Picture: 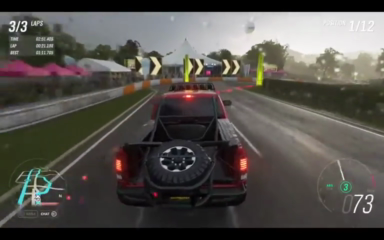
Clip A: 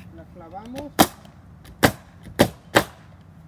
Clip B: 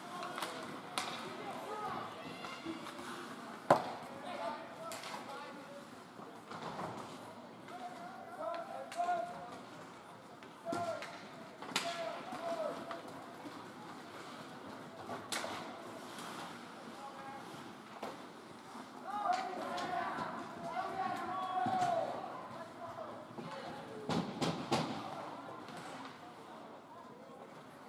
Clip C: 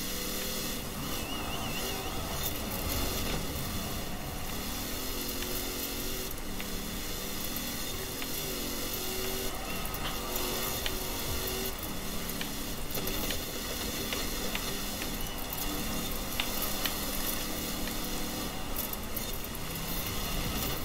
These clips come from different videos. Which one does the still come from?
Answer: C